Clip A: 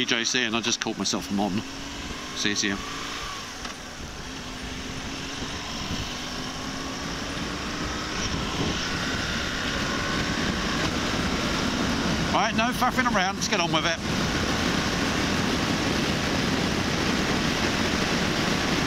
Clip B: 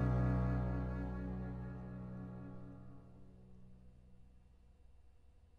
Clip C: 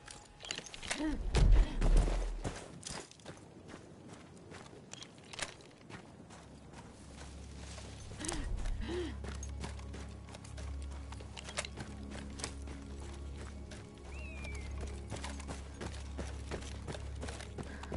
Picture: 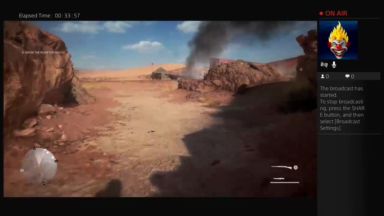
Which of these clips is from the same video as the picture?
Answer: C